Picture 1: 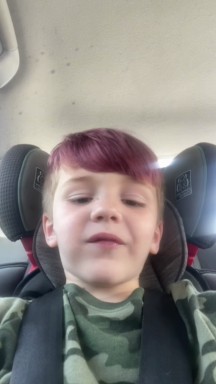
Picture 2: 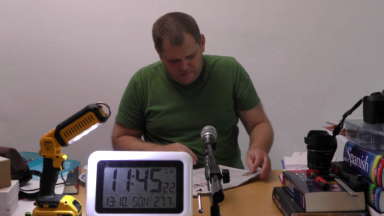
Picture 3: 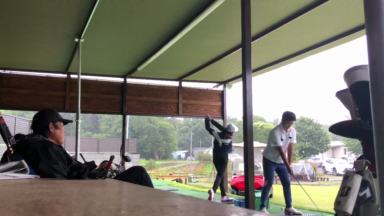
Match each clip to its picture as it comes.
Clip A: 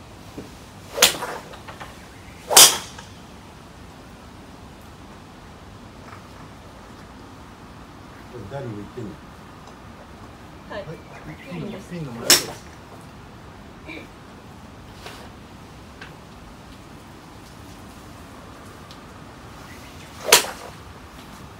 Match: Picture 3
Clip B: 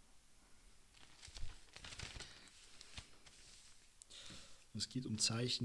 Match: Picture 2